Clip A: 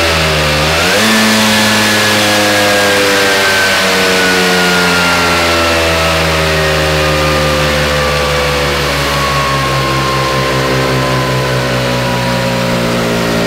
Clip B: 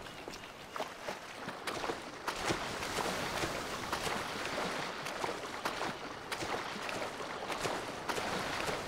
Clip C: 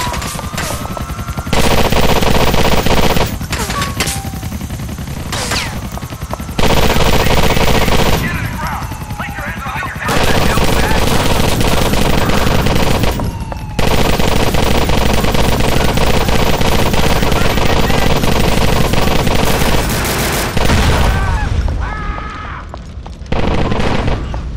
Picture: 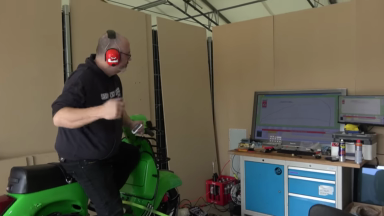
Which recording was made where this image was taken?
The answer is A